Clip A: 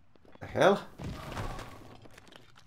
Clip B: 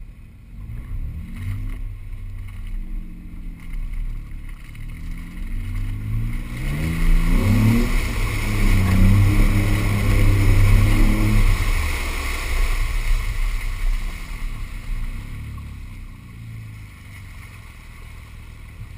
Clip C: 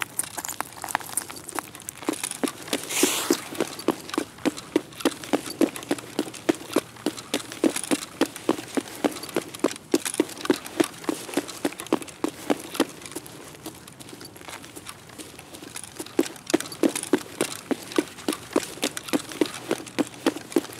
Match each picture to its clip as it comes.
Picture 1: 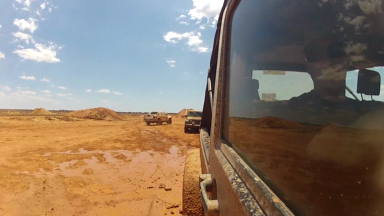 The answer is B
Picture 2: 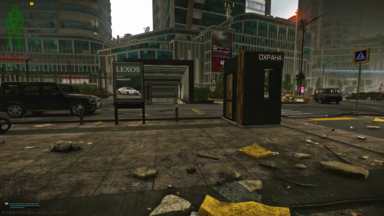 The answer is C